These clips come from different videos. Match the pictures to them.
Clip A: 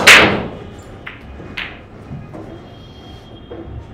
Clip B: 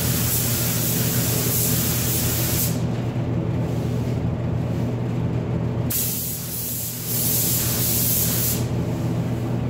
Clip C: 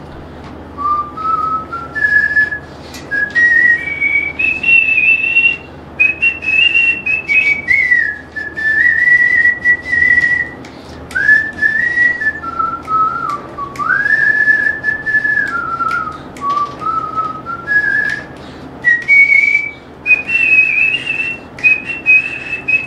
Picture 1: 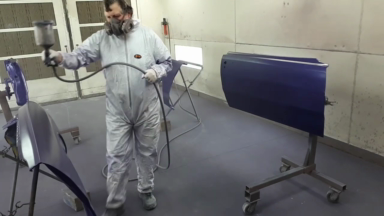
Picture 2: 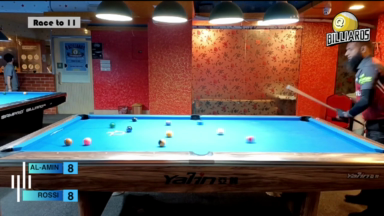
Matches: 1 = B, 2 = A